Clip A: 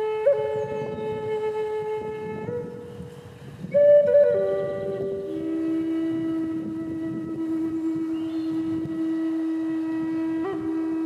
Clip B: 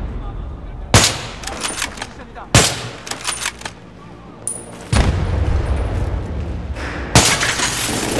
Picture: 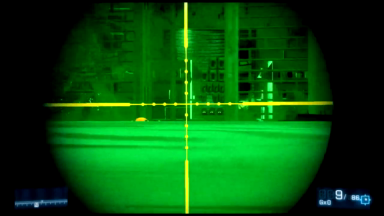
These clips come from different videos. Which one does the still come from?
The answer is B